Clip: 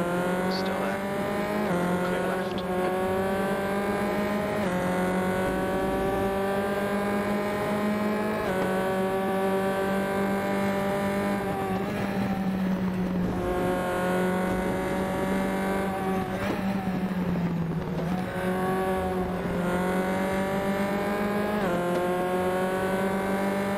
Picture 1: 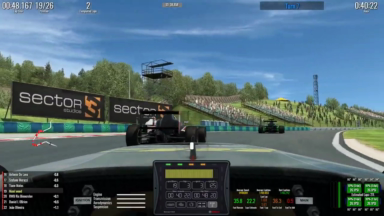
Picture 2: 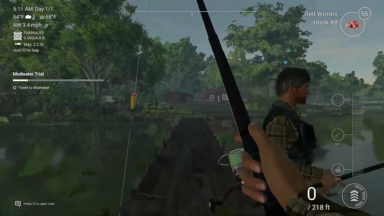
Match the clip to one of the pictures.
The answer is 1